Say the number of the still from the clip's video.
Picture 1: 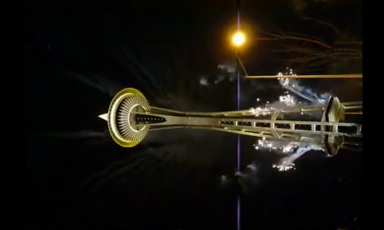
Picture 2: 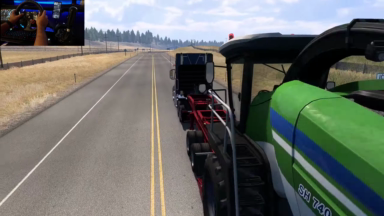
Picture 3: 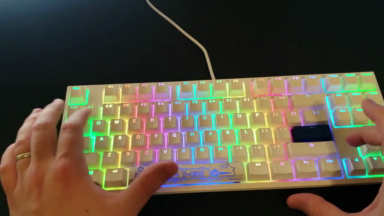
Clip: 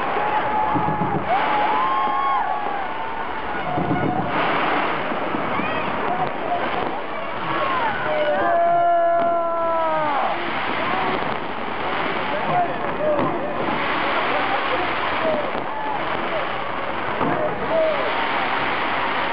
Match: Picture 1